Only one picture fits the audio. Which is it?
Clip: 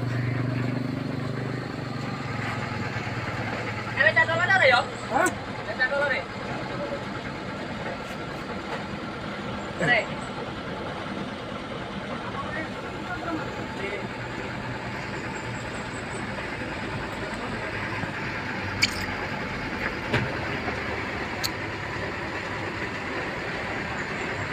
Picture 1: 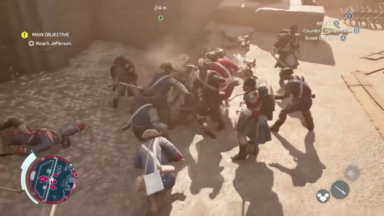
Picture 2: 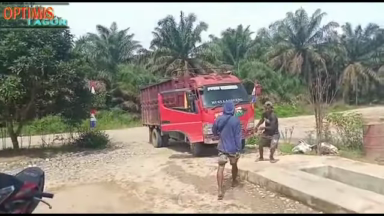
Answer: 2